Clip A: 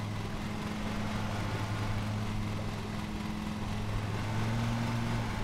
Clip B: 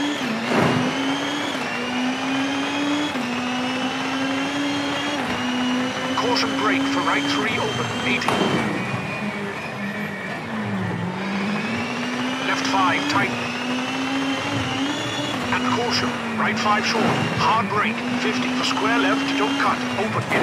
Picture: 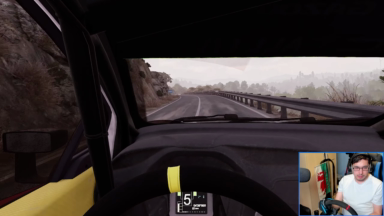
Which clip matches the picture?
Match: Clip B